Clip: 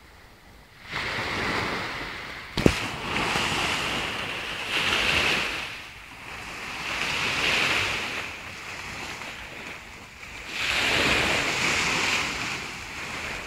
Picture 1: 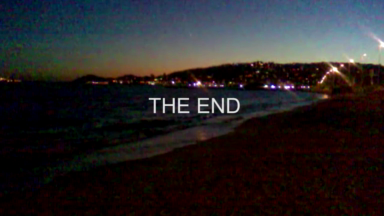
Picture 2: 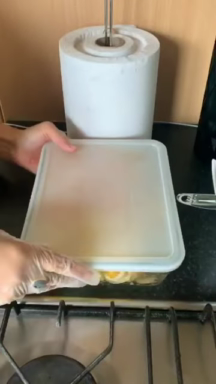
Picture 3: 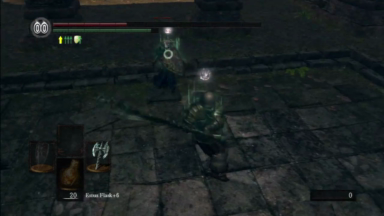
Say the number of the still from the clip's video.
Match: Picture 1